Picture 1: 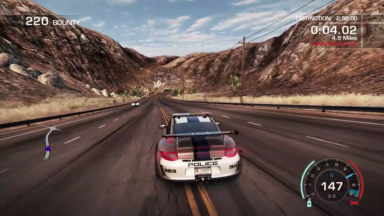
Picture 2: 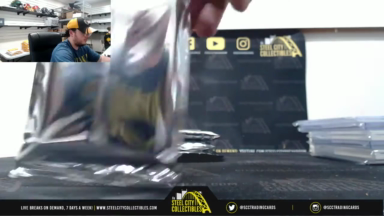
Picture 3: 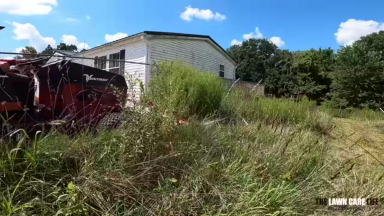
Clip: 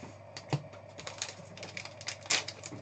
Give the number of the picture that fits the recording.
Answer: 2